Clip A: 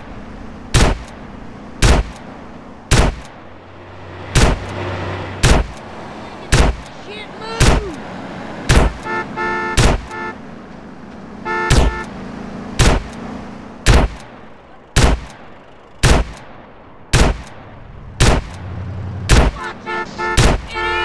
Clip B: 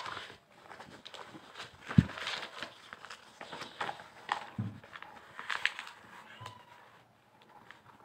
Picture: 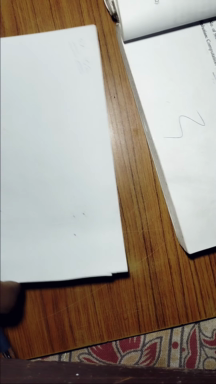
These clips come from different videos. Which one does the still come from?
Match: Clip B